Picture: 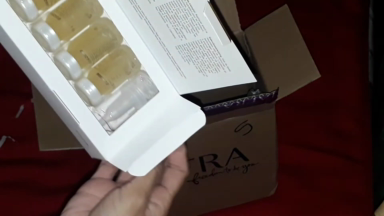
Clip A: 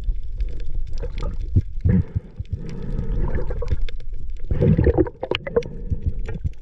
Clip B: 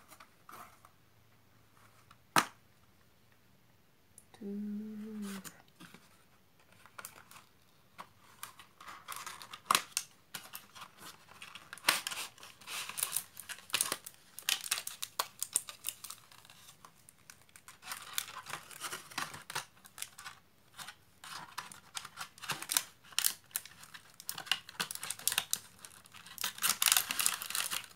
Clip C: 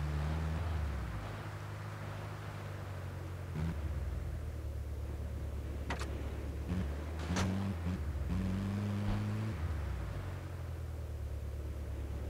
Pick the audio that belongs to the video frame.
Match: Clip B